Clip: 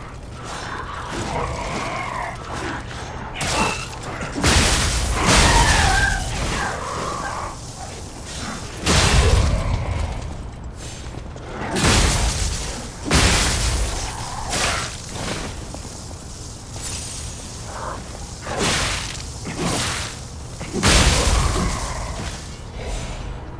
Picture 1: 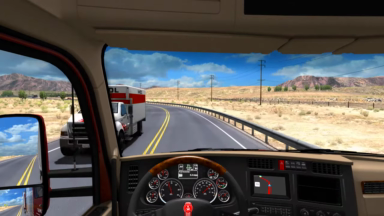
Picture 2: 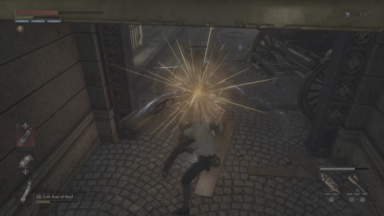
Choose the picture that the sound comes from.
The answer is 2